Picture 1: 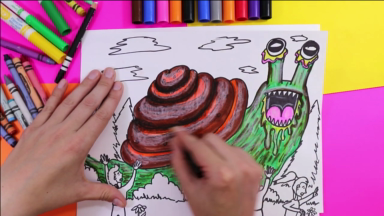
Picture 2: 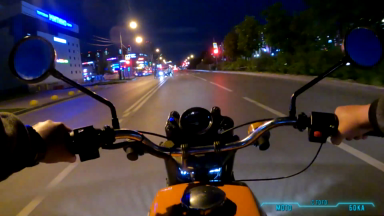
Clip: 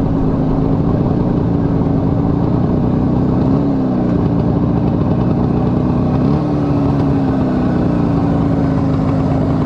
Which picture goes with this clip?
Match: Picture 2